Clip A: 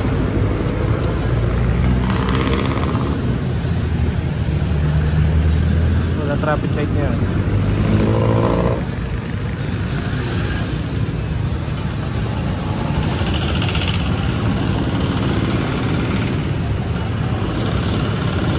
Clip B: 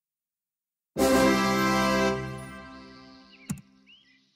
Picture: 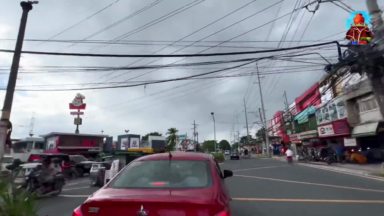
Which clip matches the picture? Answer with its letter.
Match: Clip A